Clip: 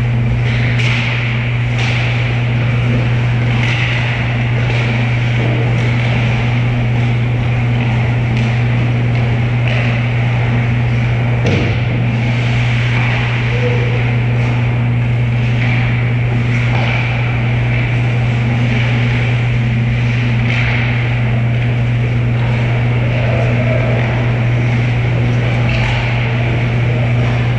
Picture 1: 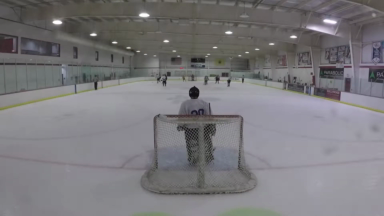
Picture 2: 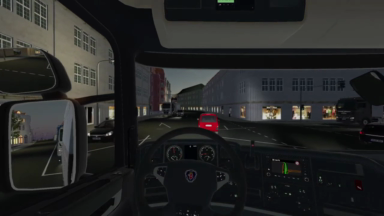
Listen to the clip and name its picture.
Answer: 1